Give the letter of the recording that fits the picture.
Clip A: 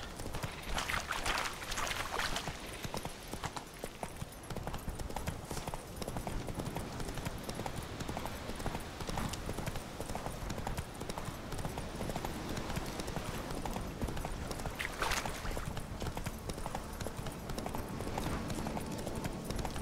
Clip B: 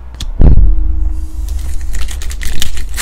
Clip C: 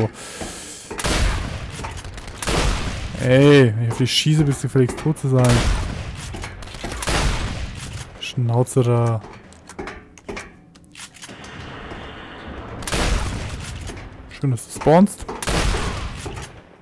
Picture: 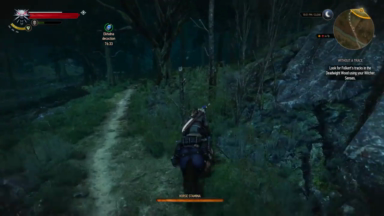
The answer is A